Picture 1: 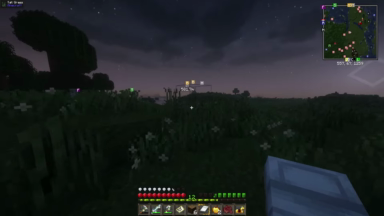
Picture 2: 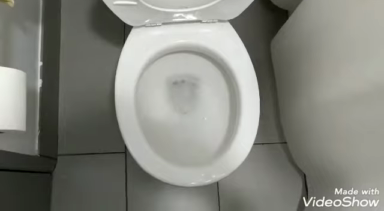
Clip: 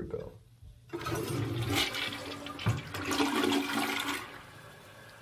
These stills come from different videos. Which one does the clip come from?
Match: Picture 2